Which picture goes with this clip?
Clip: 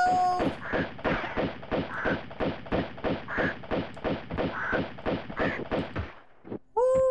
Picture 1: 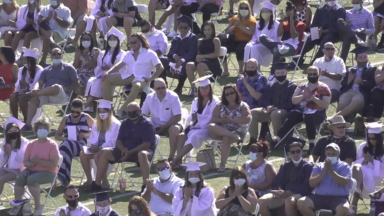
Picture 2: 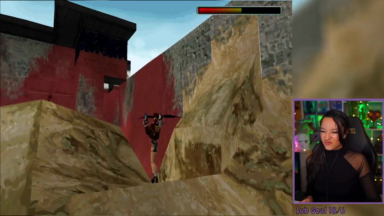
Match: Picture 2